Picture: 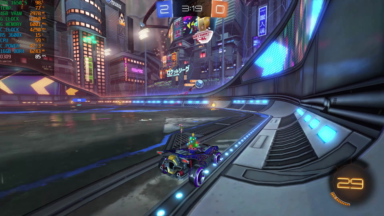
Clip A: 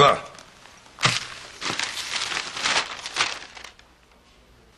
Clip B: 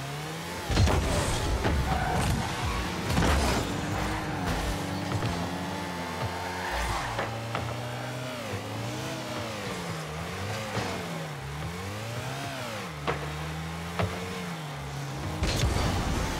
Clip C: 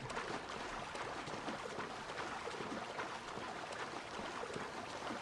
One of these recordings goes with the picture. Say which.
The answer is B